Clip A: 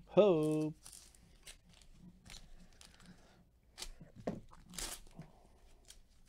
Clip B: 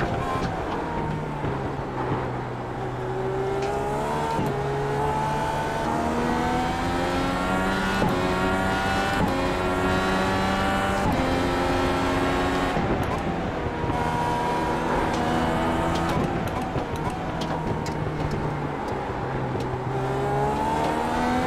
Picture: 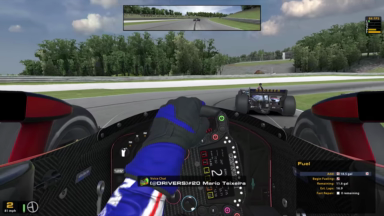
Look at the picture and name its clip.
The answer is B